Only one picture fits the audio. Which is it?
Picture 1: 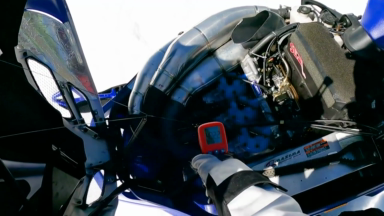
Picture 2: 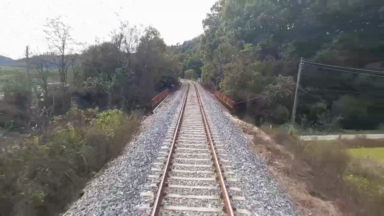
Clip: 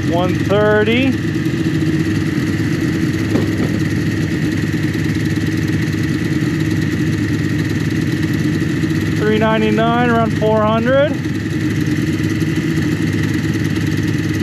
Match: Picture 1